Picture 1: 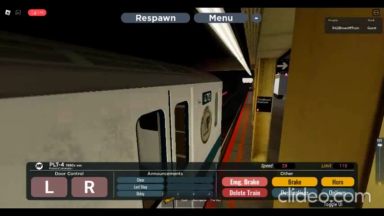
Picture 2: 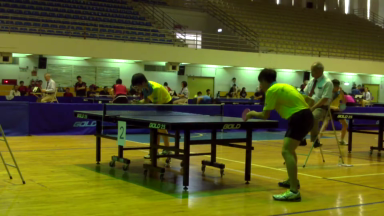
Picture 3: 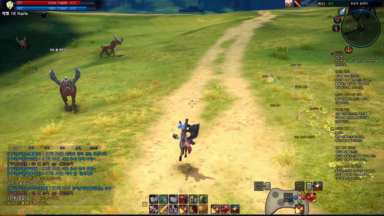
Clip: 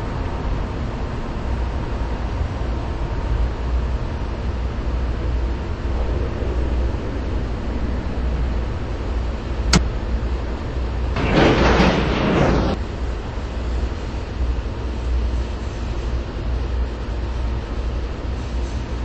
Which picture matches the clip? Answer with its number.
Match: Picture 1